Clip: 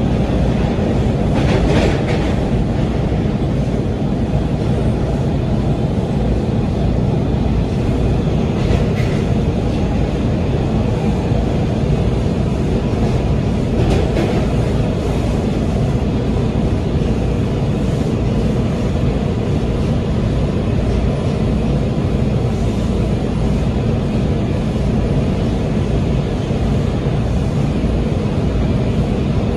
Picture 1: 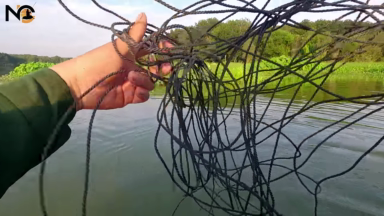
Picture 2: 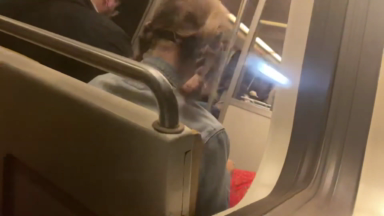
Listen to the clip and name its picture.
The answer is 2